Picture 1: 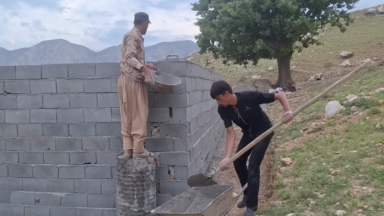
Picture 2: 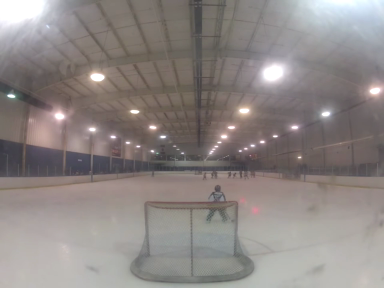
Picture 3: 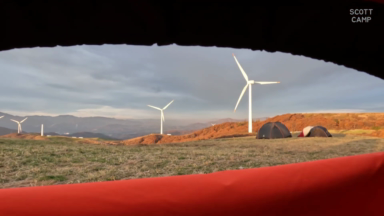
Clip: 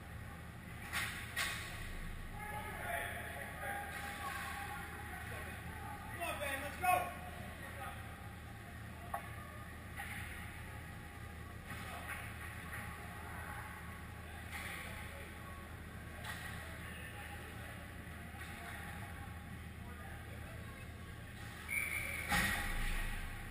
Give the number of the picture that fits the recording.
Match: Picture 2